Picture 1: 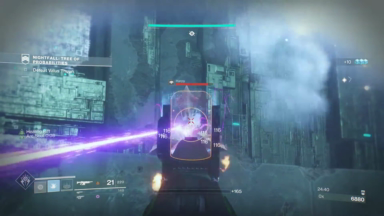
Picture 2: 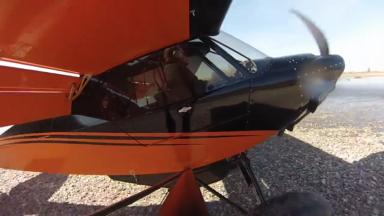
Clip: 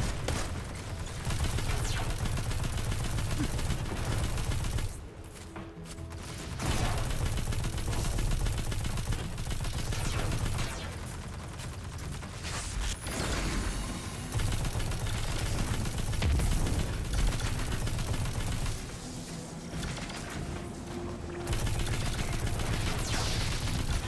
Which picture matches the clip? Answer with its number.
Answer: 1